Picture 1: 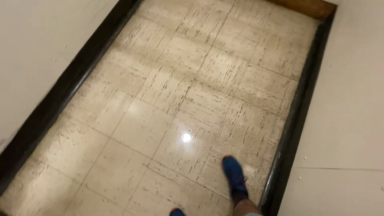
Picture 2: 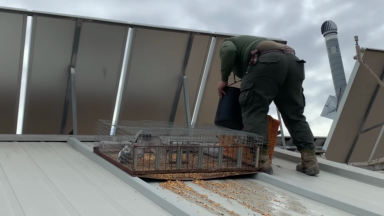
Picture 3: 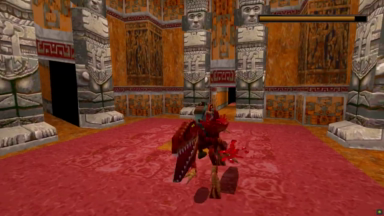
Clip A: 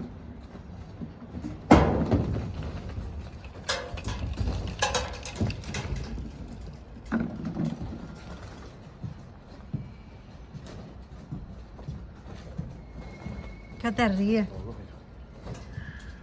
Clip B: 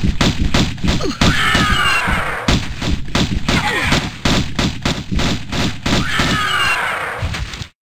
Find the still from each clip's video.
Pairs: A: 2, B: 3